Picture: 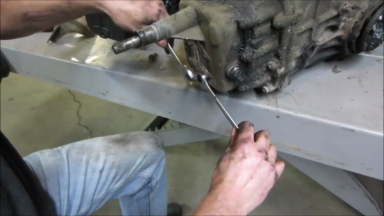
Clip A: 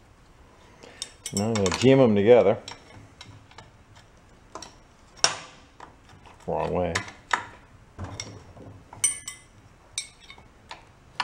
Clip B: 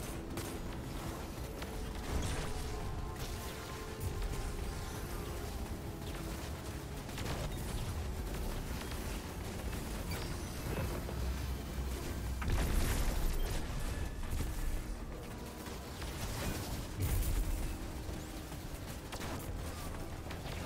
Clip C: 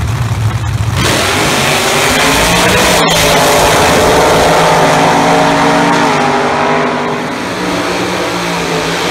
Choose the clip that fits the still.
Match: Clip A